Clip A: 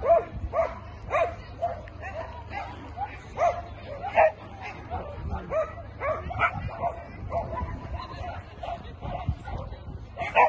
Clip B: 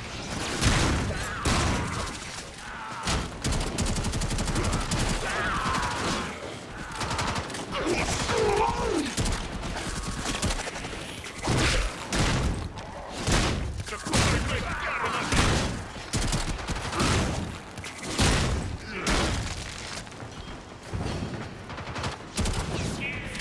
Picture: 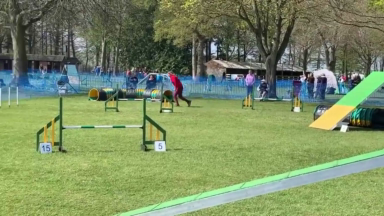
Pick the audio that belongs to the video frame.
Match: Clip A